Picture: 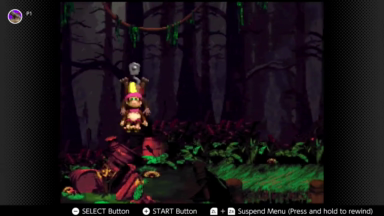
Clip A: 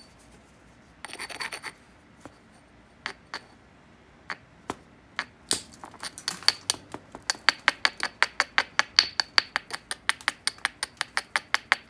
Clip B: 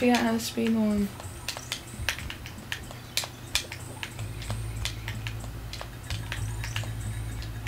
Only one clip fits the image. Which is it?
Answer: B